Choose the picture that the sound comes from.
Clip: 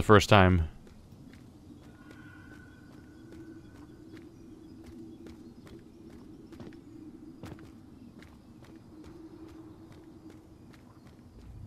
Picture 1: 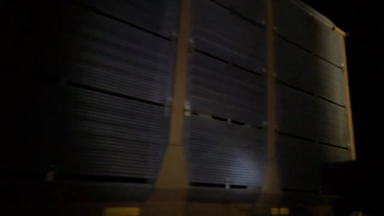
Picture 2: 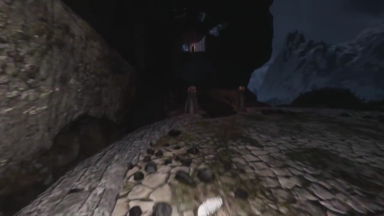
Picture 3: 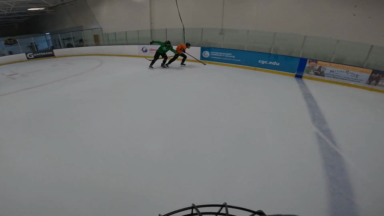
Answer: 2